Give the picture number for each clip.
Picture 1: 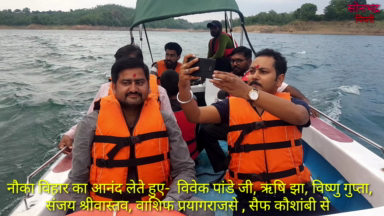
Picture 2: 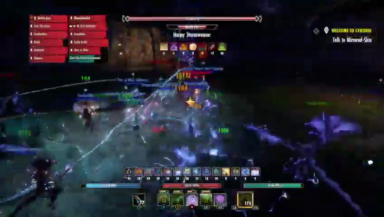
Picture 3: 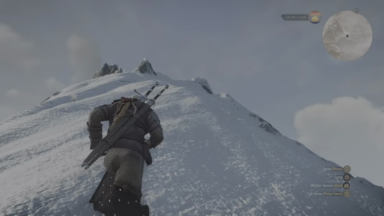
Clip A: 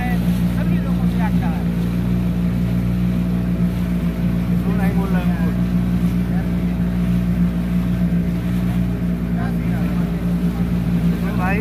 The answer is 1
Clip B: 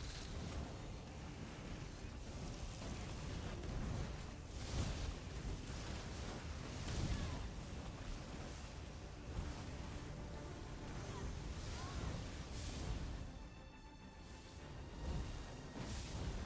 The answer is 2